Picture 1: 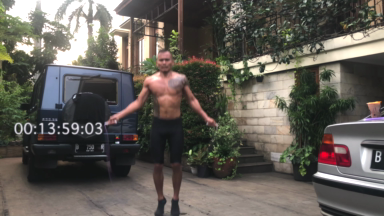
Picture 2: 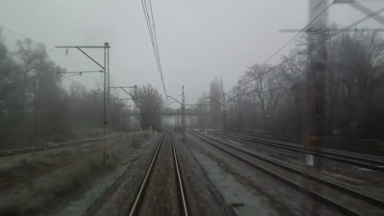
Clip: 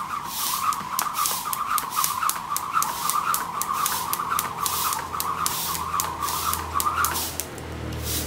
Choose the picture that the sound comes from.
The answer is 1